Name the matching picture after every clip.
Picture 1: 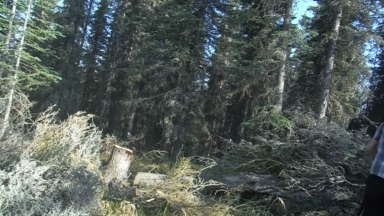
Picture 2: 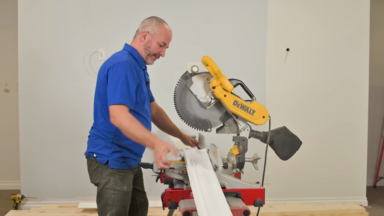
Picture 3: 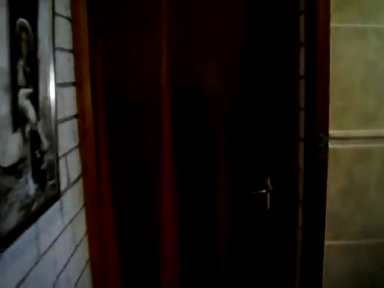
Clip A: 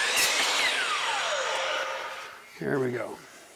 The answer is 2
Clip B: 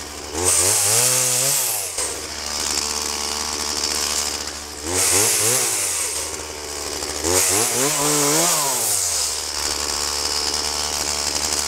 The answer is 1